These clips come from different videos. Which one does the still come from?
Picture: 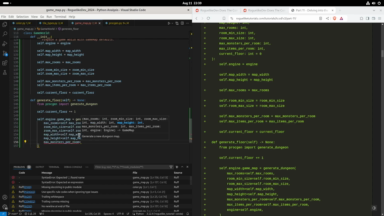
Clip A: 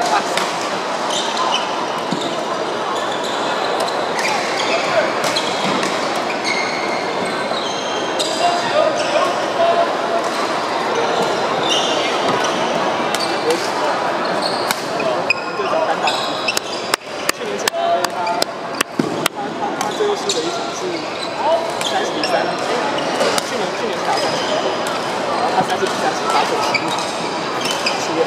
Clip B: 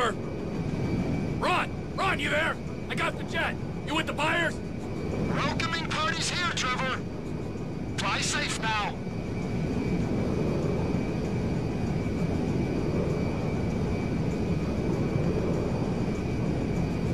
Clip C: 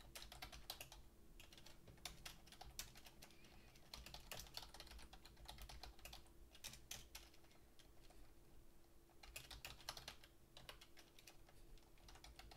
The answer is C